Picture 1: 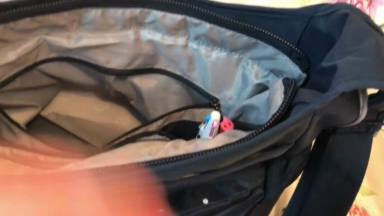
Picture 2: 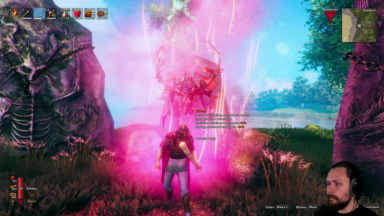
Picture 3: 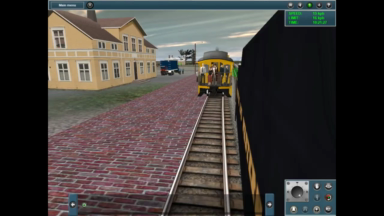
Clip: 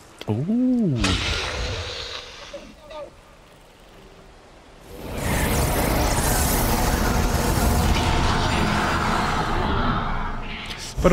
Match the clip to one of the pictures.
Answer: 2